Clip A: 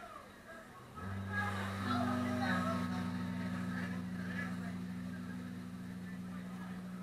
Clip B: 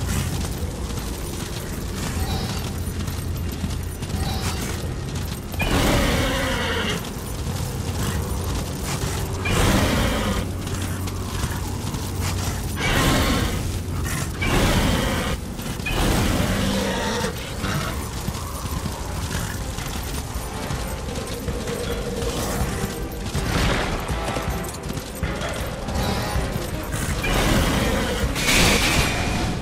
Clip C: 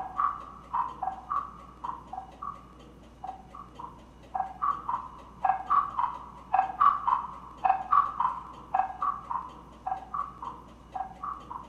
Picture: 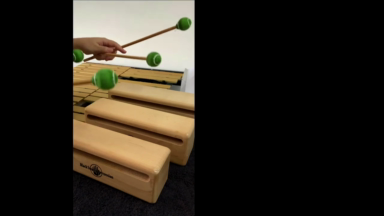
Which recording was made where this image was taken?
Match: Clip C